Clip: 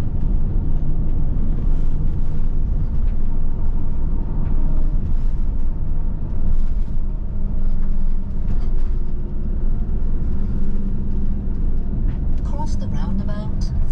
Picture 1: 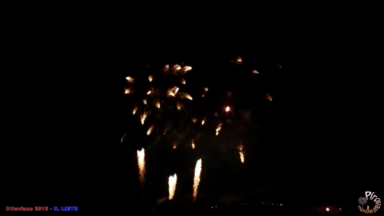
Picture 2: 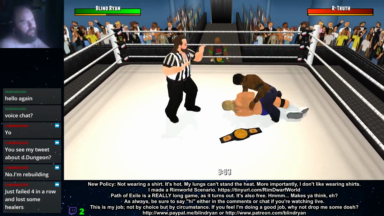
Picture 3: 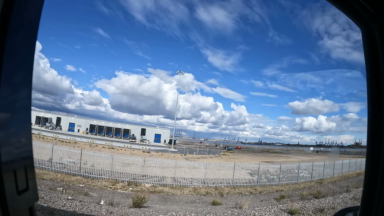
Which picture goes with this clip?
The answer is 3